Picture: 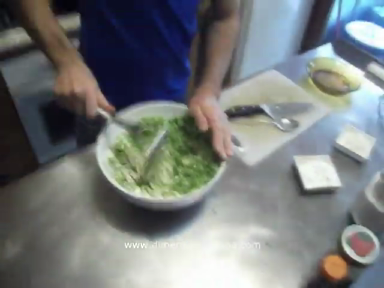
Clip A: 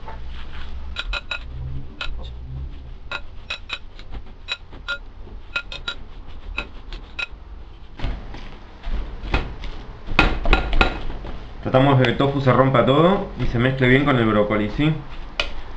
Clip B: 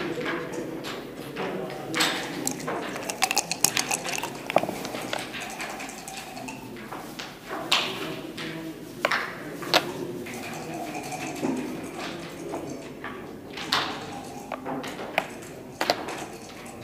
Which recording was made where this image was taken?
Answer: A